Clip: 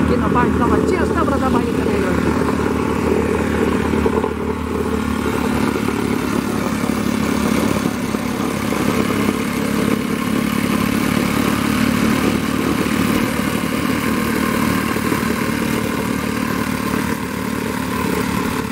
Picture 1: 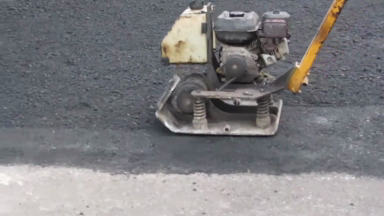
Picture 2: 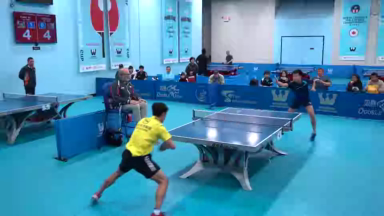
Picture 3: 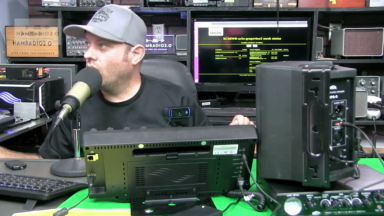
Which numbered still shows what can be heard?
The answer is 1